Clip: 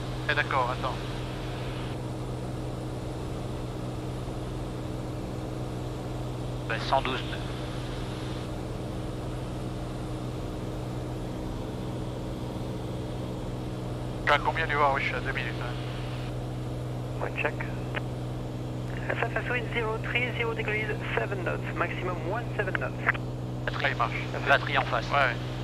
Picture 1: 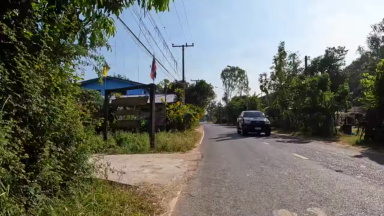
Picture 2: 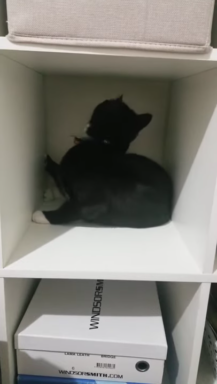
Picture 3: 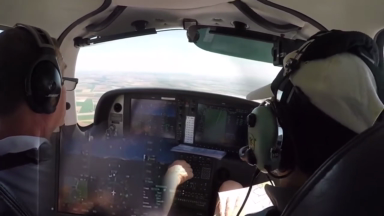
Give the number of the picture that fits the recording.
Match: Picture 3